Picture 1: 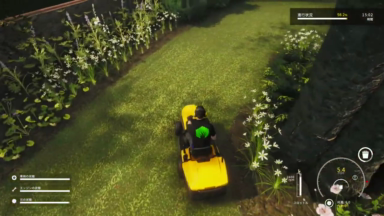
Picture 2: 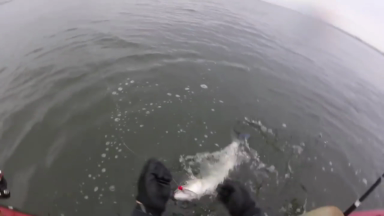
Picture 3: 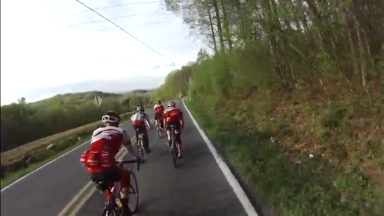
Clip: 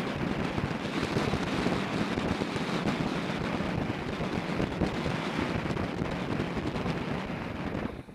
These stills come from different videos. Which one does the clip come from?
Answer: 3